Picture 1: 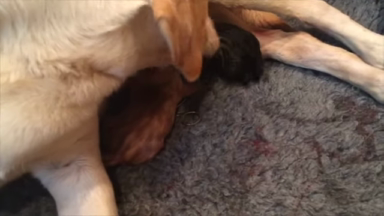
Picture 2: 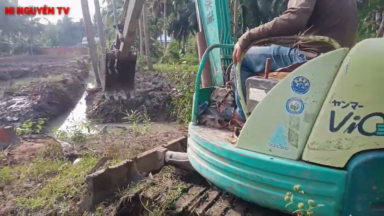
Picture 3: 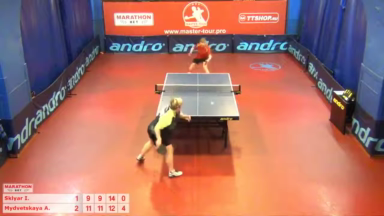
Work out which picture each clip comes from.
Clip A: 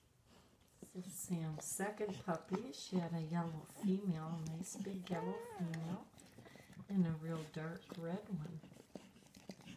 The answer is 1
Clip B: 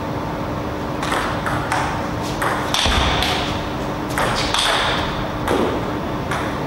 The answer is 3